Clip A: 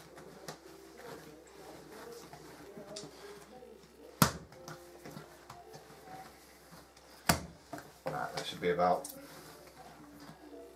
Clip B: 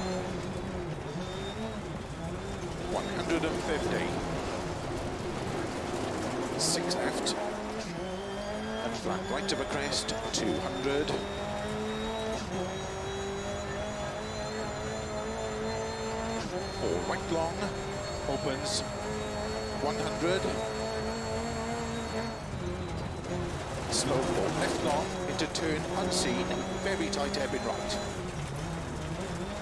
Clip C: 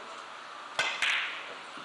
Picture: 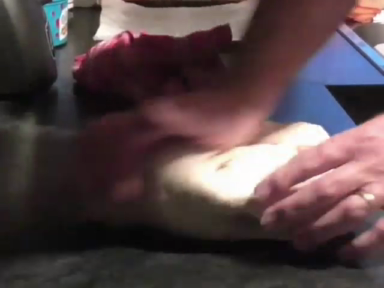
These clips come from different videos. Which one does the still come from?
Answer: A